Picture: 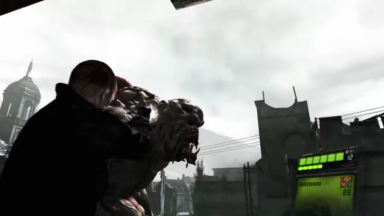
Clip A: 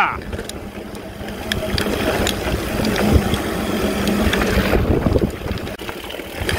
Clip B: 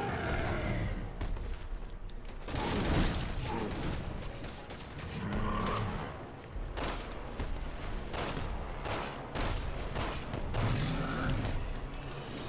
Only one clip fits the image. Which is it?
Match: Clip B